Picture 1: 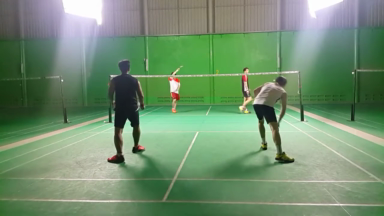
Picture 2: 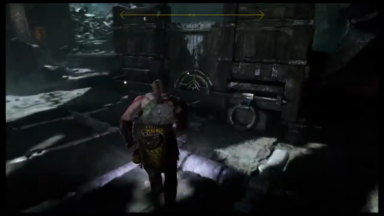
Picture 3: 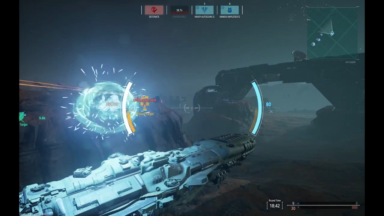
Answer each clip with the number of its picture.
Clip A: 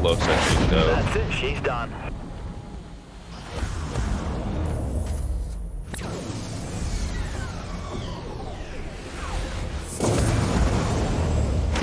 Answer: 3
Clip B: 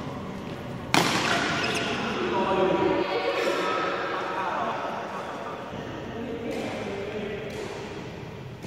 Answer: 1